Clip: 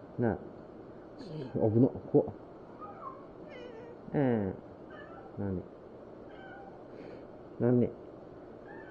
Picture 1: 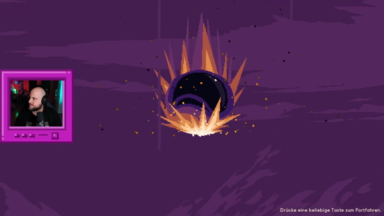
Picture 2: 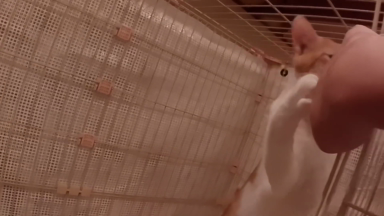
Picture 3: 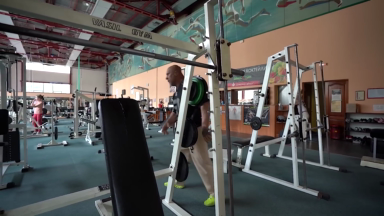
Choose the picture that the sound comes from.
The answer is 2